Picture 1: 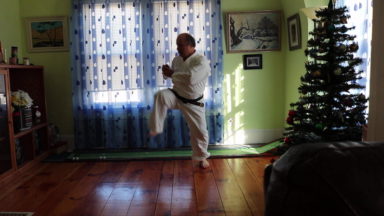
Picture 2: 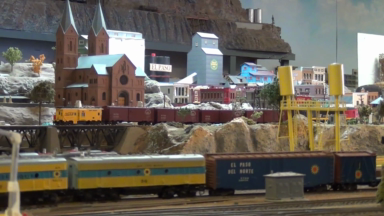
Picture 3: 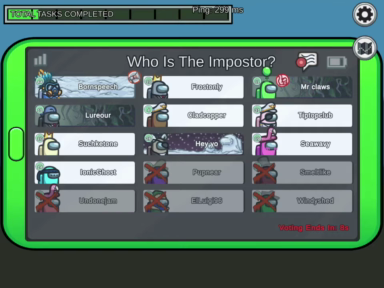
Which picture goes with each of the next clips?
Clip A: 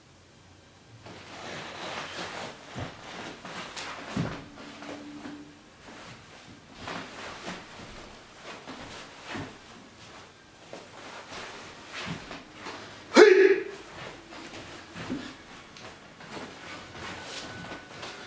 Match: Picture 1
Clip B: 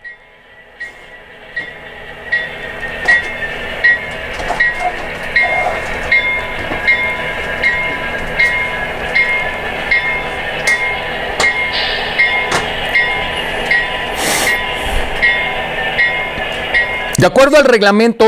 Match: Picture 2